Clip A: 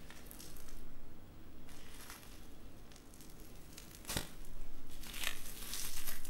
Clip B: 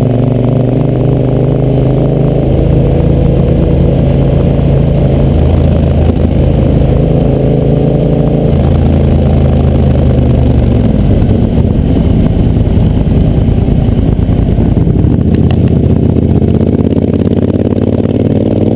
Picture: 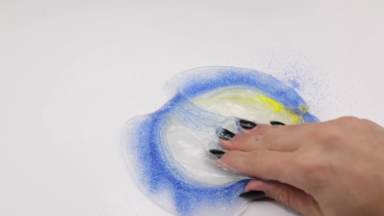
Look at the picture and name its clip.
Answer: A